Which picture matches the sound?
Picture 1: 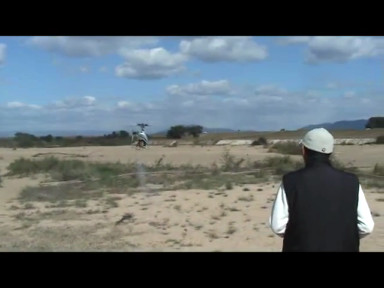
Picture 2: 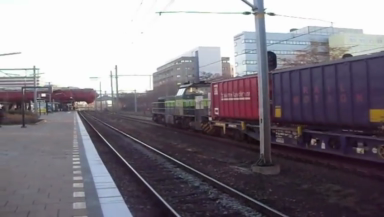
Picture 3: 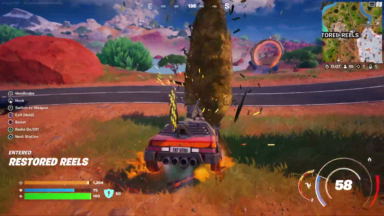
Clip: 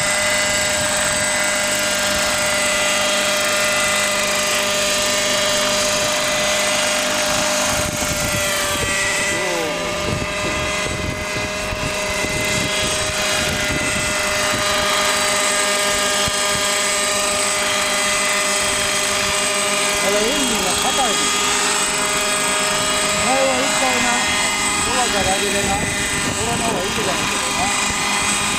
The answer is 1